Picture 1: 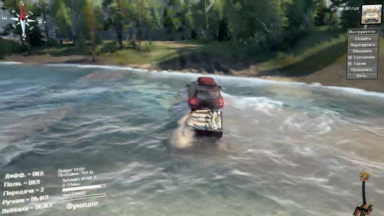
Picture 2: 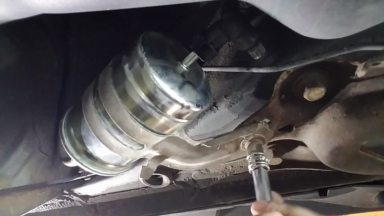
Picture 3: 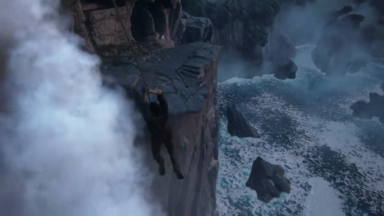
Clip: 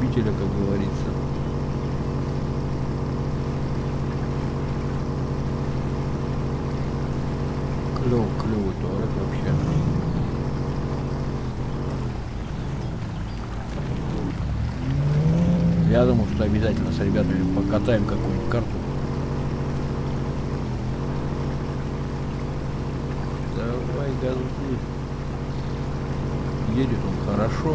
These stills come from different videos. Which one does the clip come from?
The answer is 1